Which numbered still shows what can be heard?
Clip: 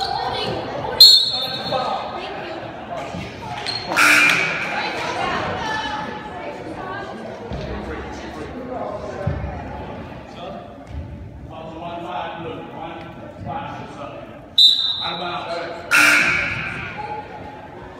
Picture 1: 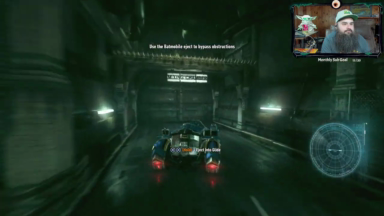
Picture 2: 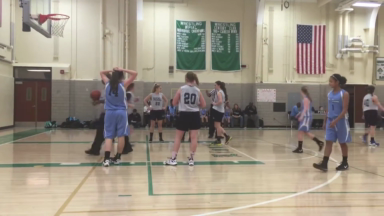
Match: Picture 2